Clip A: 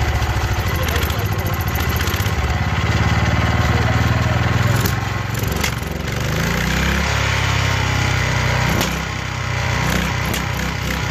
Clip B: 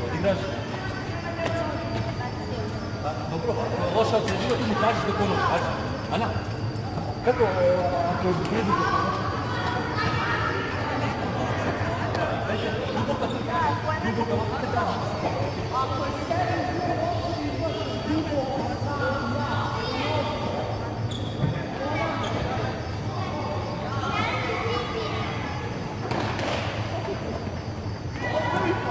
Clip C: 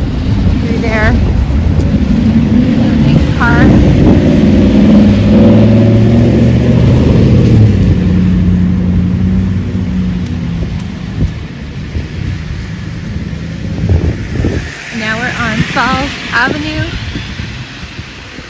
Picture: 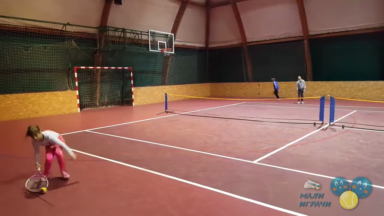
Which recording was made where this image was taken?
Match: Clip B